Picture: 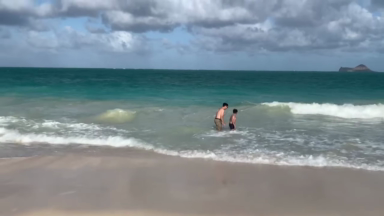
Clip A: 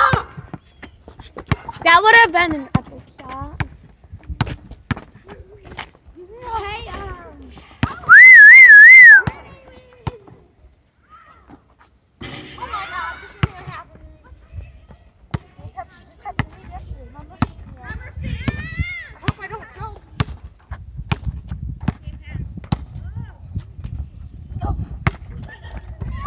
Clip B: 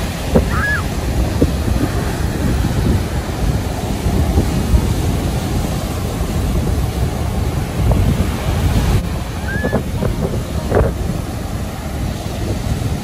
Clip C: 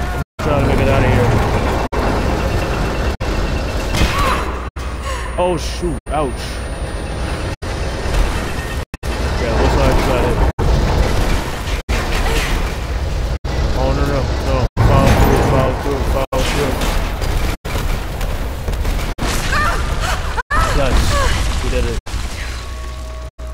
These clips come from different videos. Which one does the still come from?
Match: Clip B